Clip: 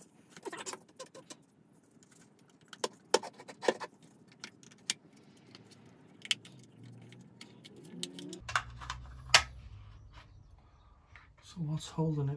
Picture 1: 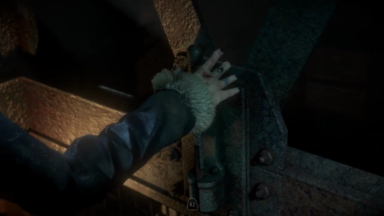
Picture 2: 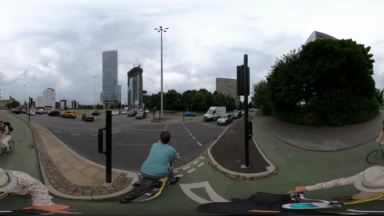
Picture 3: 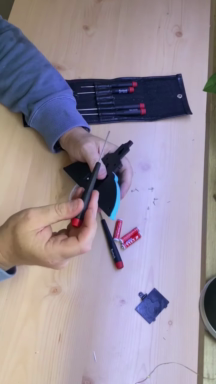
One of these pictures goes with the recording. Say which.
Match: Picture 3